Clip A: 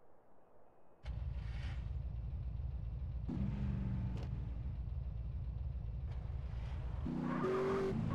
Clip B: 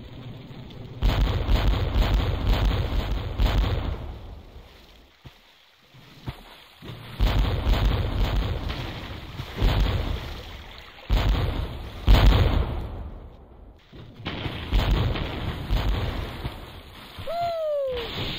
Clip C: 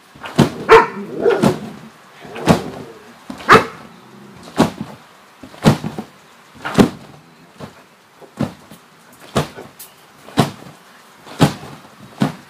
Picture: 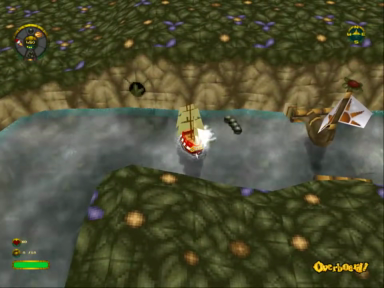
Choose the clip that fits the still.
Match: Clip B